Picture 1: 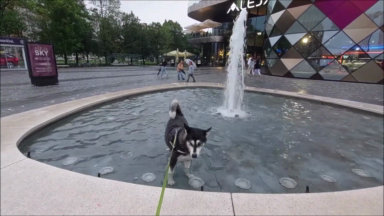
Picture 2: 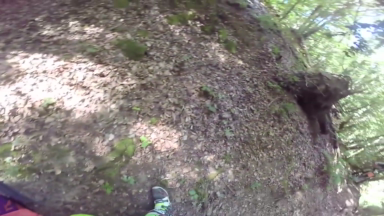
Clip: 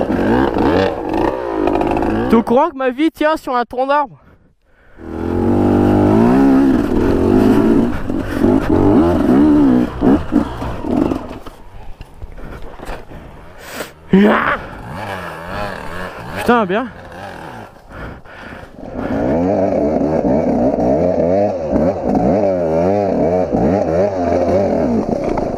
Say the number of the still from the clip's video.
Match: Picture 2